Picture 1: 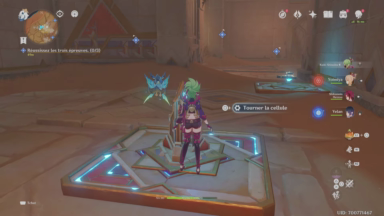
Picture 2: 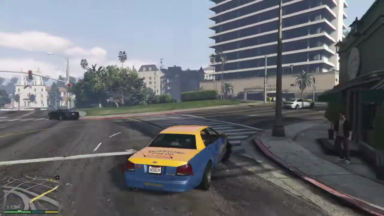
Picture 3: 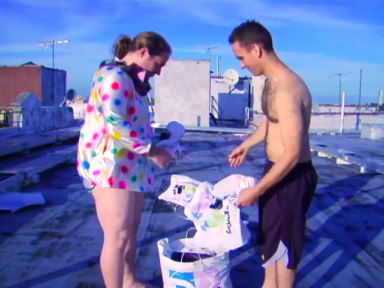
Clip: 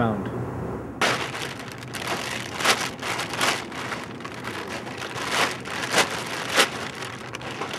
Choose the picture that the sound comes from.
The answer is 3